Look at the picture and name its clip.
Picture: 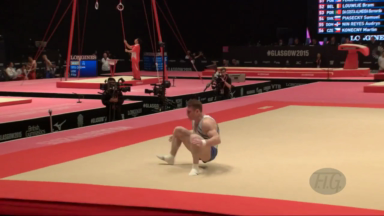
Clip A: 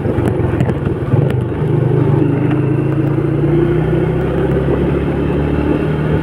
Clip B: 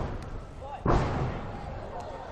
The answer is B